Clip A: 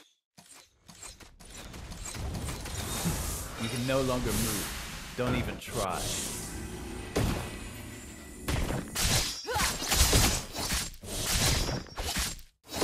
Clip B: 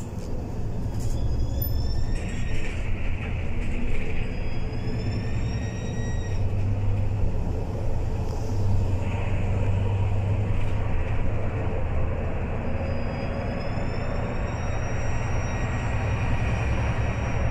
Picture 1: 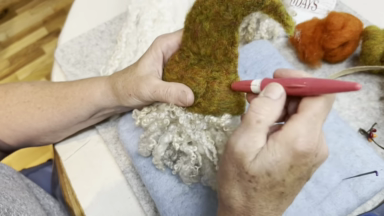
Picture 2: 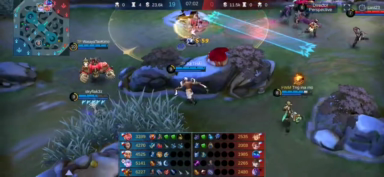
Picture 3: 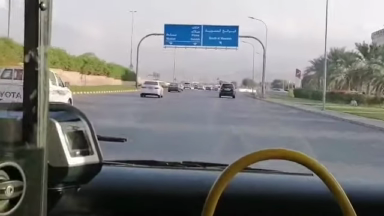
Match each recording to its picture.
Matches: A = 2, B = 3